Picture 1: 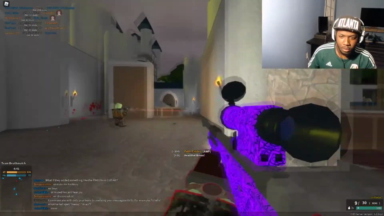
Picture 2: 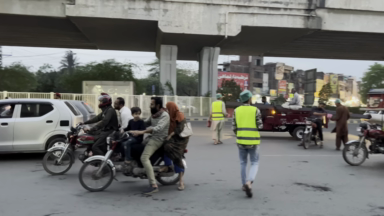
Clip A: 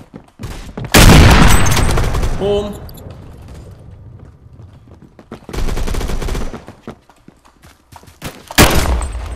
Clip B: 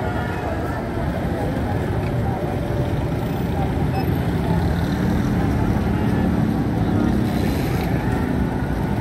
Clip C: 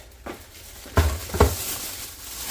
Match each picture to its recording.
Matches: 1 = A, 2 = B